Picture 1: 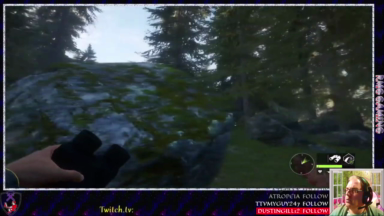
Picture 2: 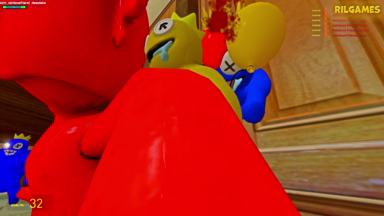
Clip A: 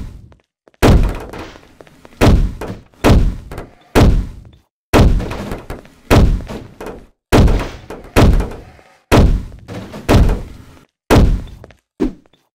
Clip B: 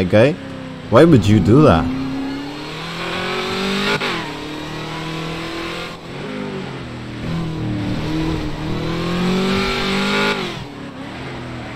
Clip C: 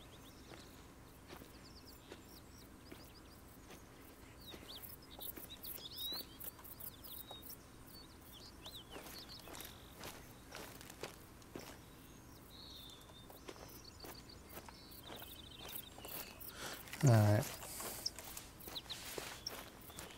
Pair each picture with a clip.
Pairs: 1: C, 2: A